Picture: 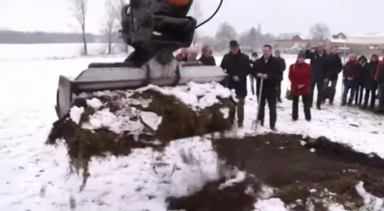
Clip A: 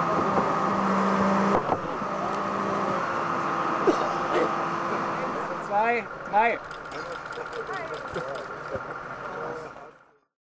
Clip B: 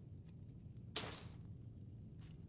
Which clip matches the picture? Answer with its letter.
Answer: A